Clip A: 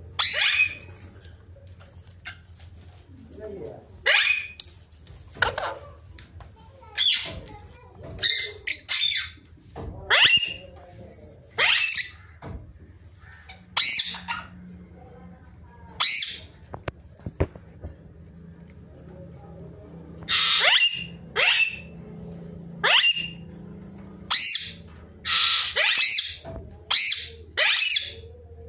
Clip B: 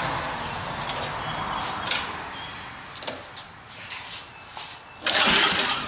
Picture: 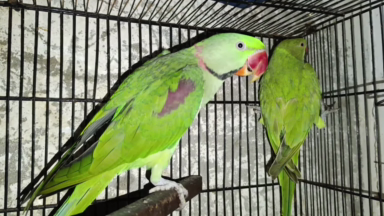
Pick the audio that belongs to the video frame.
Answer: A